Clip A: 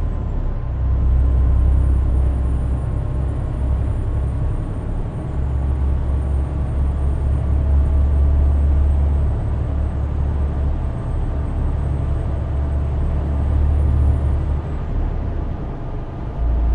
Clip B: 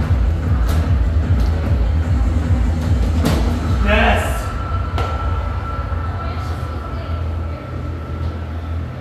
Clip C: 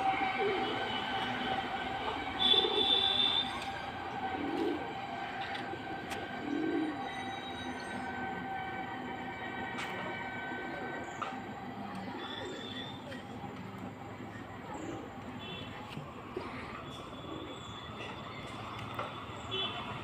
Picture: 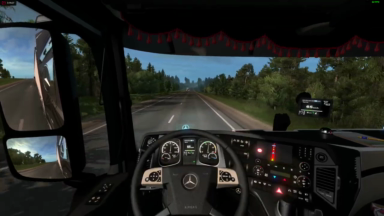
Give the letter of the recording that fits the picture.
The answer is A